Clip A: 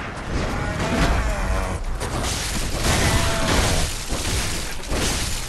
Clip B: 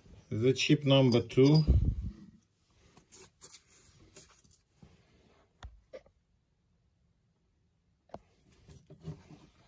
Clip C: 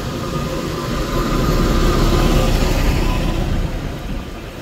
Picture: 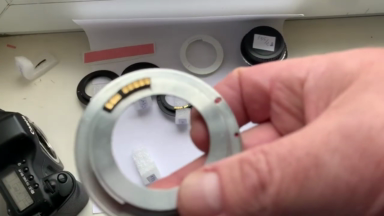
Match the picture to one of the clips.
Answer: B